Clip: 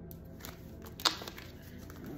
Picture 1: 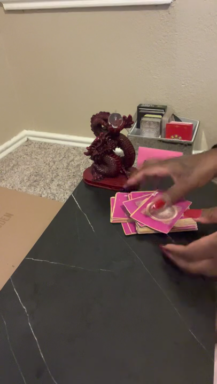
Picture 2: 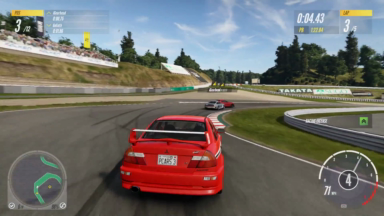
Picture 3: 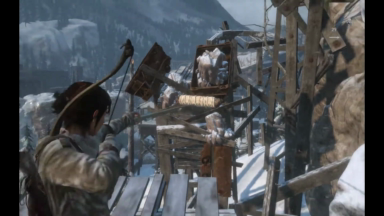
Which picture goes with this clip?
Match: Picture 1